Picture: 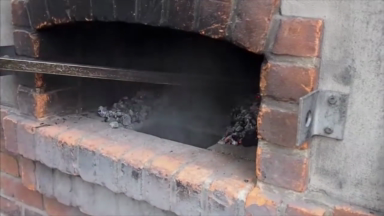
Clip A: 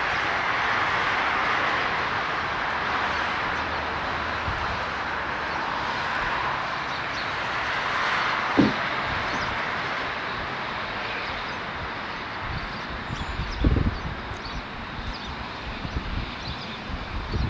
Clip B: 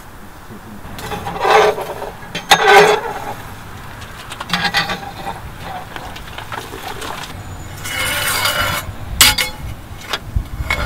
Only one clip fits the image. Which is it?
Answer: B